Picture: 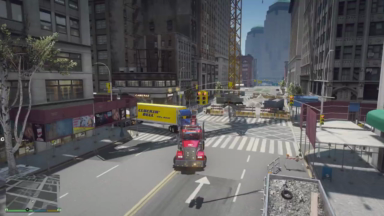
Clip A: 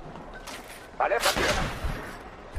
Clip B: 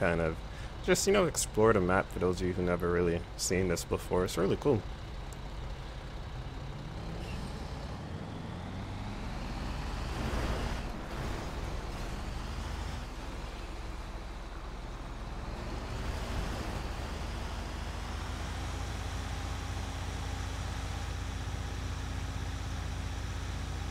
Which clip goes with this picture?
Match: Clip B